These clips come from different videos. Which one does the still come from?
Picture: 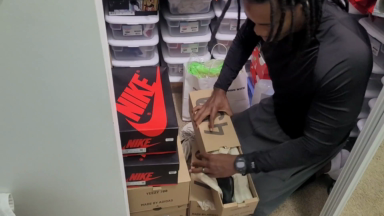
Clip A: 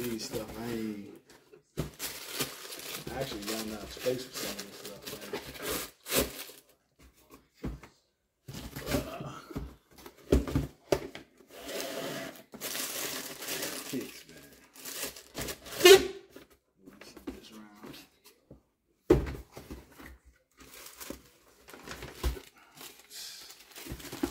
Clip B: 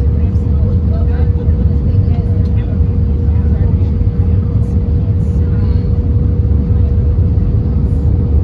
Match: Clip A